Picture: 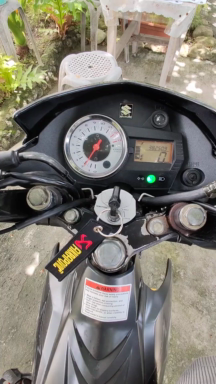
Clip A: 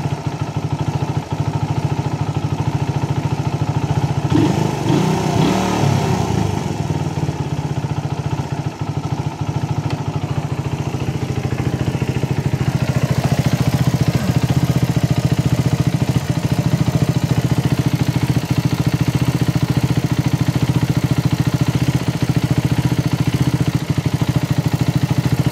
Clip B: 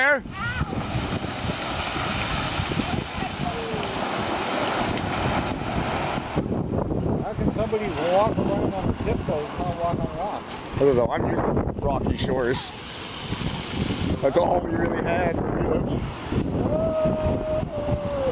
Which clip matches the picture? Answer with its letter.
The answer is A